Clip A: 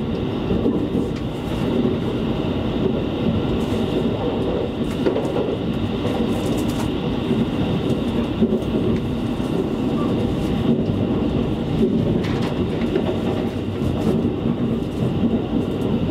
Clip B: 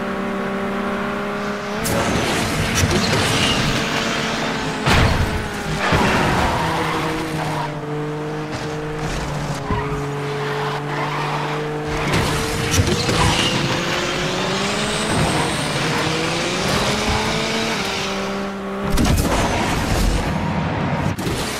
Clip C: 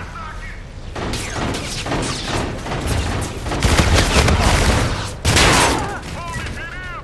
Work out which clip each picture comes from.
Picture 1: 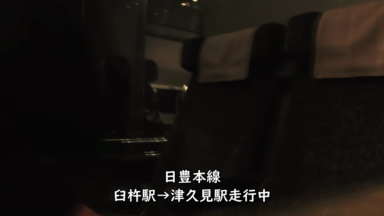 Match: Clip A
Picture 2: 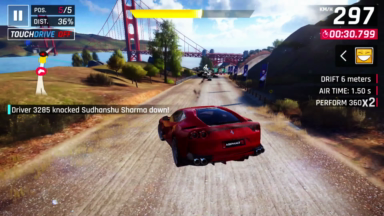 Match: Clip B